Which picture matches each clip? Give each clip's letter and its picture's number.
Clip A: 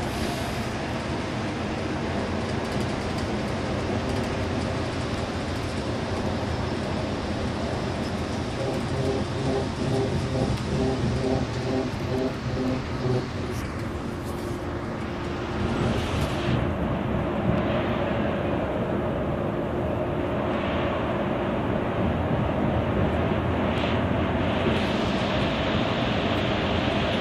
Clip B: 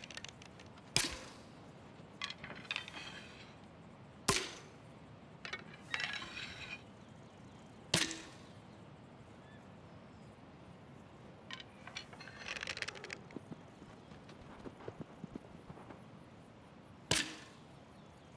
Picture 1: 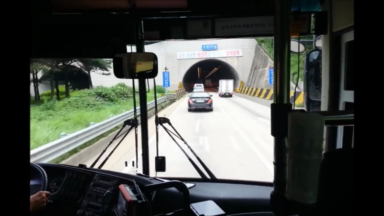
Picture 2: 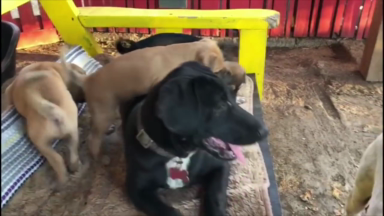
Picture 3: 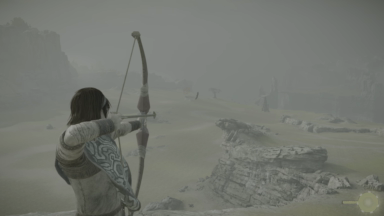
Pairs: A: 1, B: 3